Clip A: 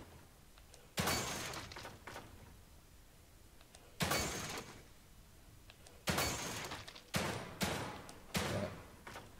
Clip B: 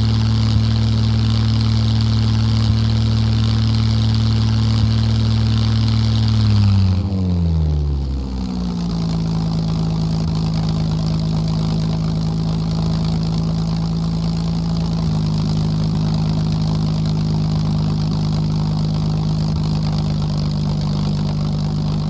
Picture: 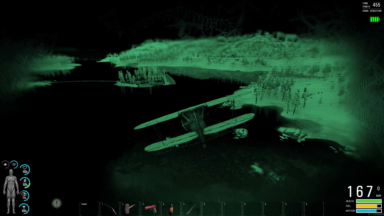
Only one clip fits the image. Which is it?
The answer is B